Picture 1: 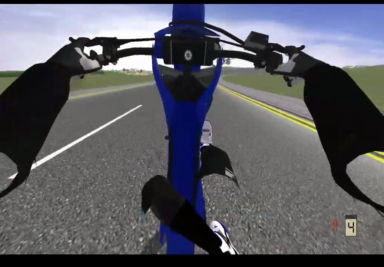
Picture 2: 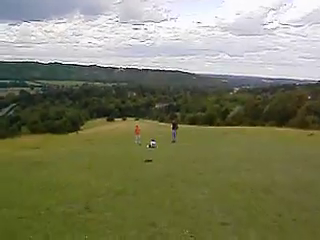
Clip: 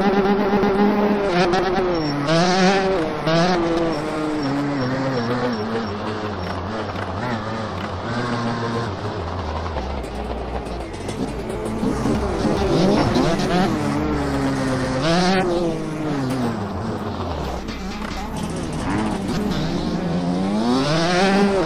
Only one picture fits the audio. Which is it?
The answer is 1